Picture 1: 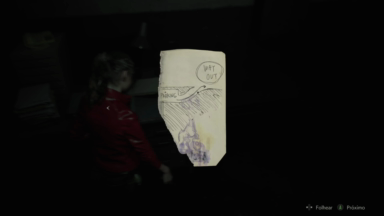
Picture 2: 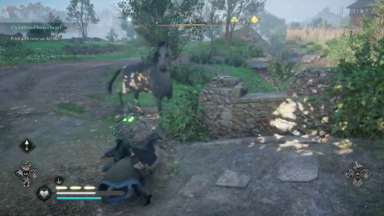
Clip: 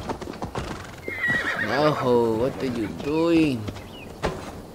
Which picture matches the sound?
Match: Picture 2